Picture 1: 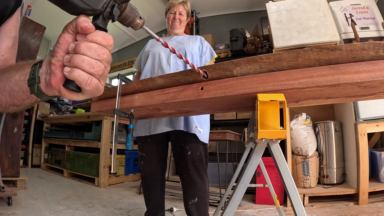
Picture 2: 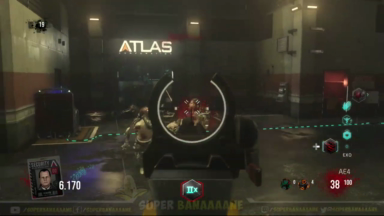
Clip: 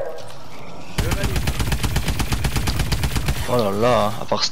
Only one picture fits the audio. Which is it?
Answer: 2